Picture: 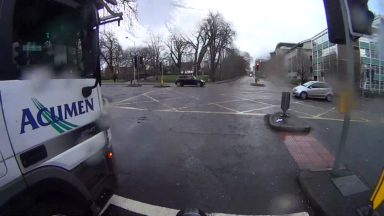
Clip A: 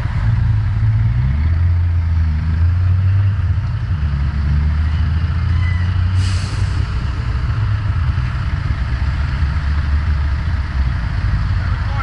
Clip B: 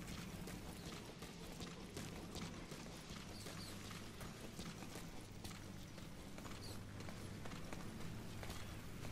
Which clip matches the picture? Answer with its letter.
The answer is A